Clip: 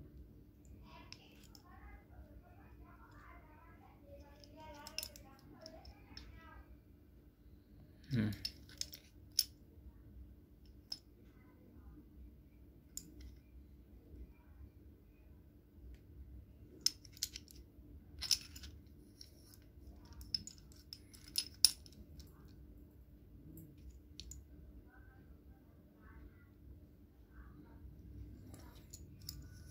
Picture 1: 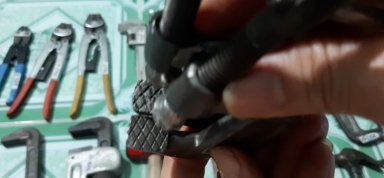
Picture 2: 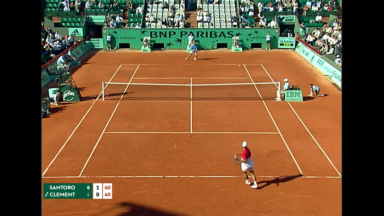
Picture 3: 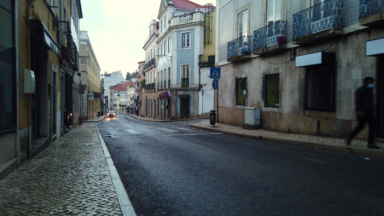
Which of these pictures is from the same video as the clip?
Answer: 1